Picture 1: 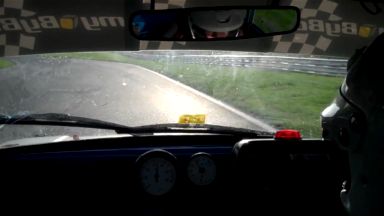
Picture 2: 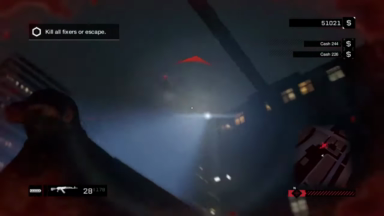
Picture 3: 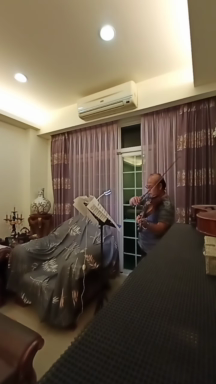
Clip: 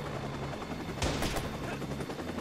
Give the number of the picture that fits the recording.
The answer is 2